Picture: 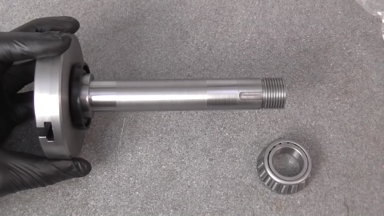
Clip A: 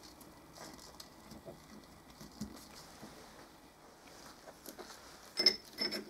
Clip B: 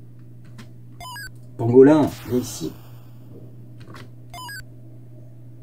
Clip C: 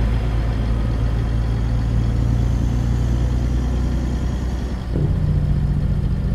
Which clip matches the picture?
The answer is A